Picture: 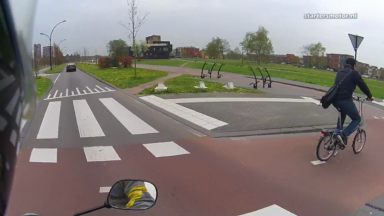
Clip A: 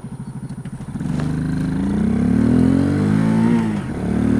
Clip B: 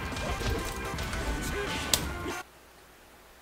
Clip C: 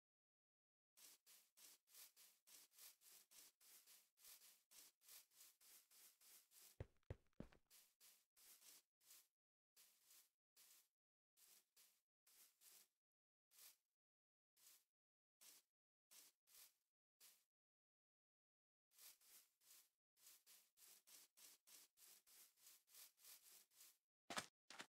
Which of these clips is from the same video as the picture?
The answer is A